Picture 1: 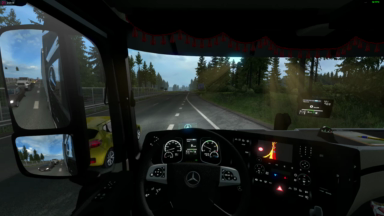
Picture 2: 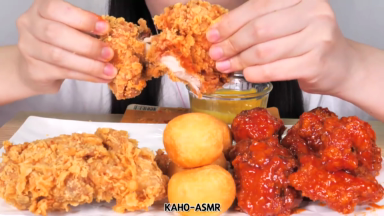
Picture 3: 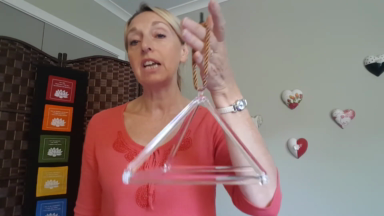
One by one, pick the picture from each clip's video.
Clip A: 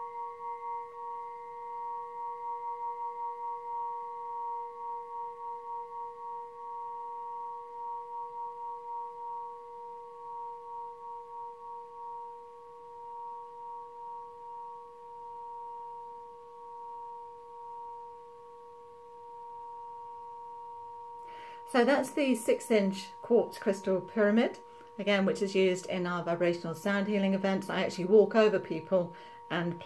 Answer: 3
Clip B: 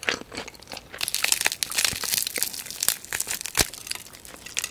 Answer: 2